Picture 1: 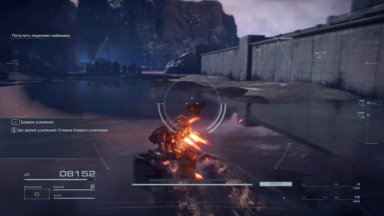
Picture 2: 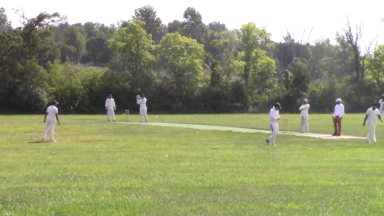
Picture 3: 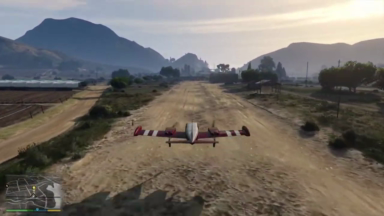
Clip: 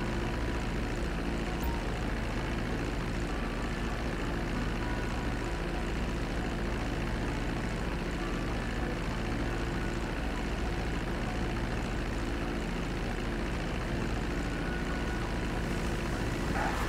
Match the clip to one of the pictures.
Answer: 3